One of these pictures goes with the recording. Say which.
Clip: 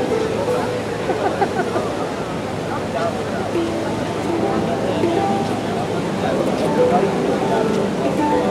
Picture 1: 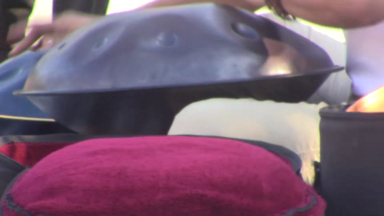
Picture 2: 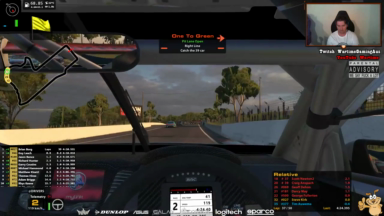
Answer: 1